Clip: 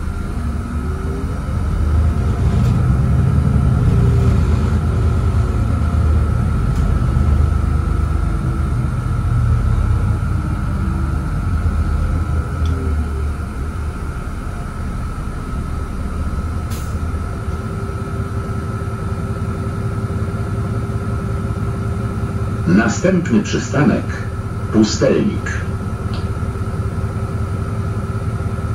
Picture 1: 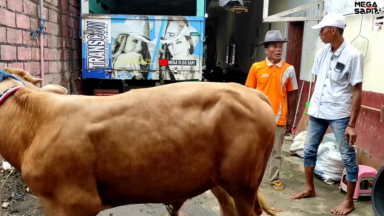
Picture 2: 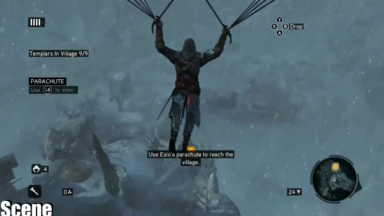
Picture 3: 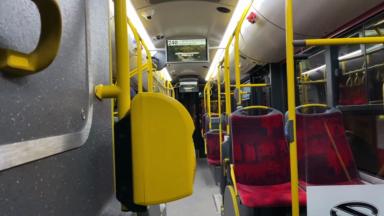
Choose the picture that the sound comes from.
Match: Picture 3